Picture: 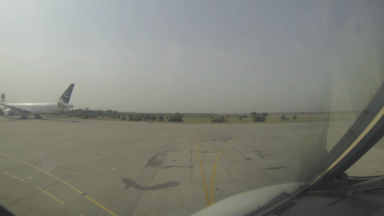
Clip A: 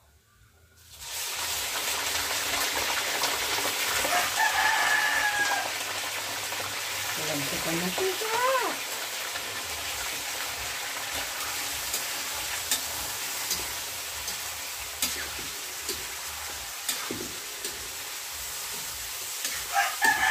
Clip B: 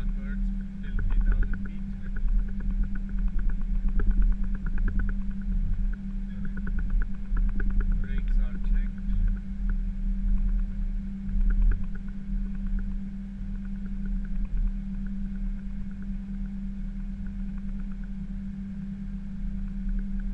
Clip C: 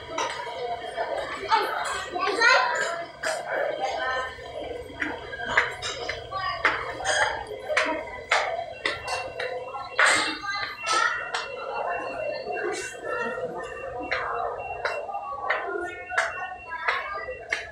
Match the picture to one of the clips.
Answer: B